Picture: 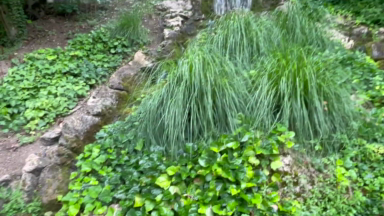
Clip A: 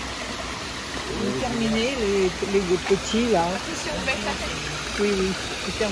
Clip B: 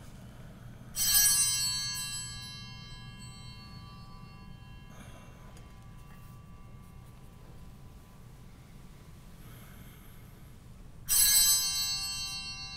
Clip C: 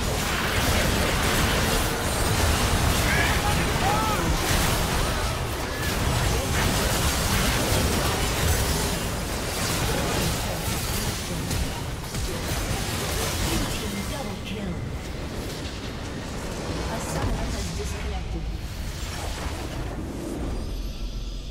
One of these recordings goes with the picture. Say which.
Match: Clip A